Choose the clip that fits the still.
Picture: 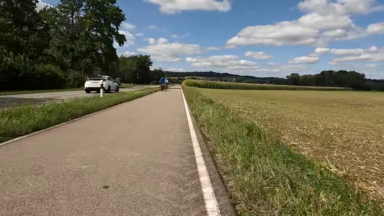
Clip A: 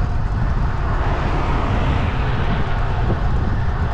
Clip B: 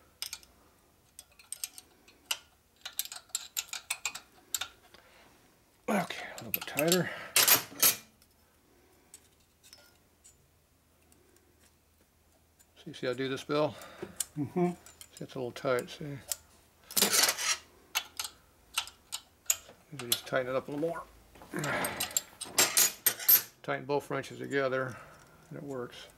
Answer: A